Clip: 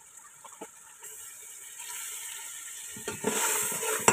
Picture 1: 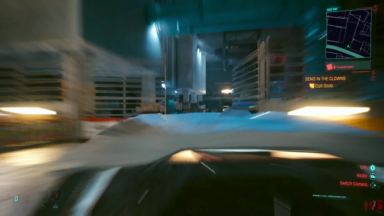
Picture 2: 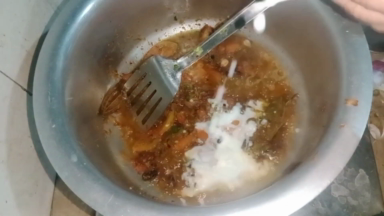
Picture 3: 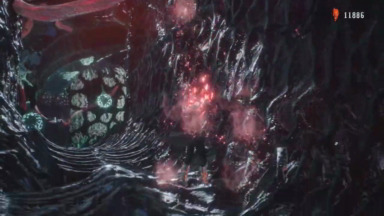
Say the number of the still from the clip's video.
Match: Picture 2